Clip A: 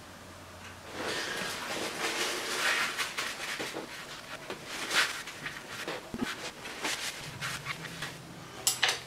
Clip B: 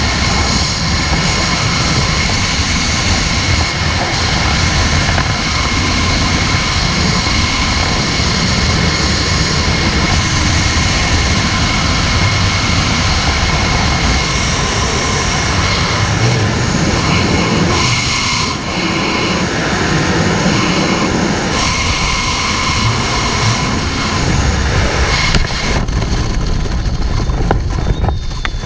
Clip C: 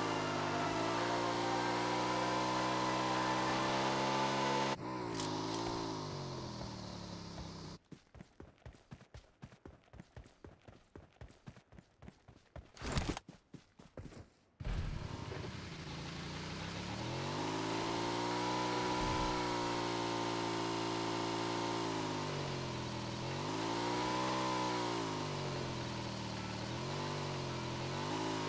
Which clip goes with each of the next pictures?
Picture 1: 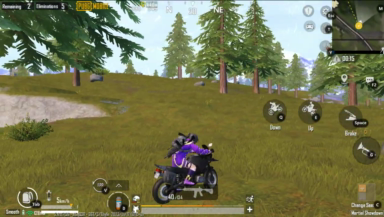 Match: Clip C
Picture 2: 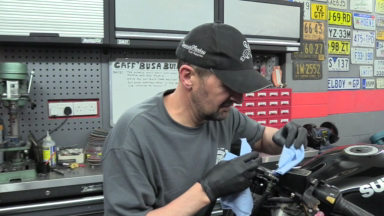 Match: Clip A